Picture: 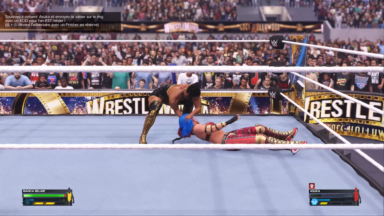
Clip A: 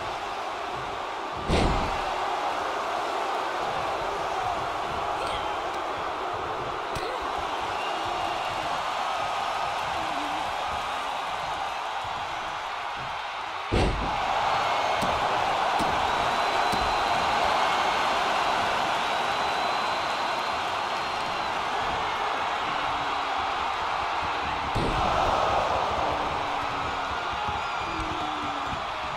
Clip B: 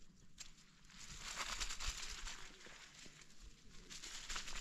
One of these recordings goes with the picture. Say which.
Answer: A